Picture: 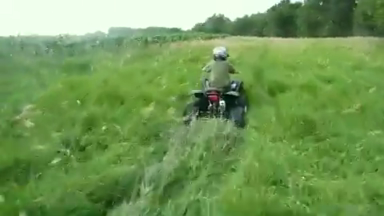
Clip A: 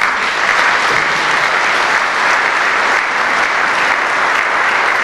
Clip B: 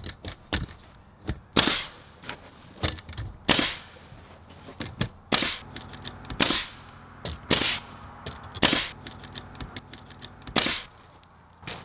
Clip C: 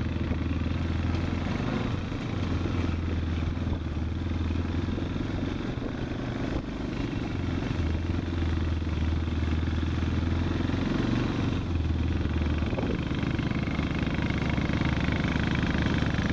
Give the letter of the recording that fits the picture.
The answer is C